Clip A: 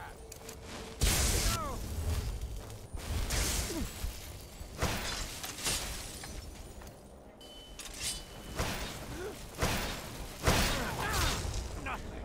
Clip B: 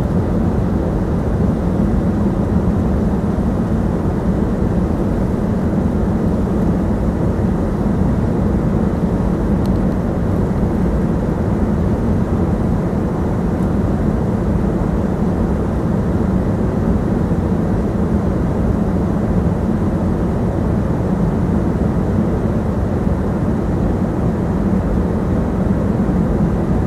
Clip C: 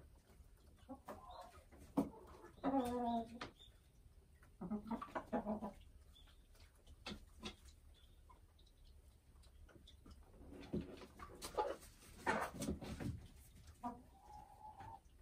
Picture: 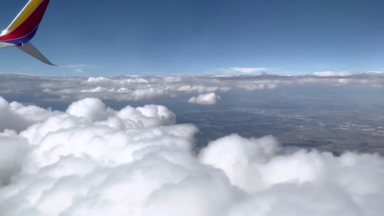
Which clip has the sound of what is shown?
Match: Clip B